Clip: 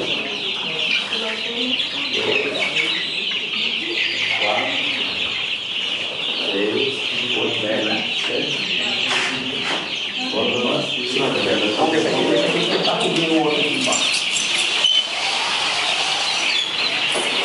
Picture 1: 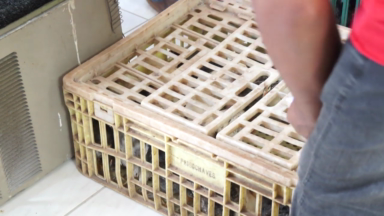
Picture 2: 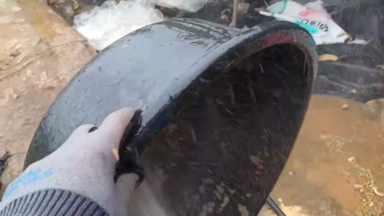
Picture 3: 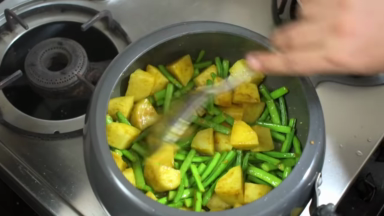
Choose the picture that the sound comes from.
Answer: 1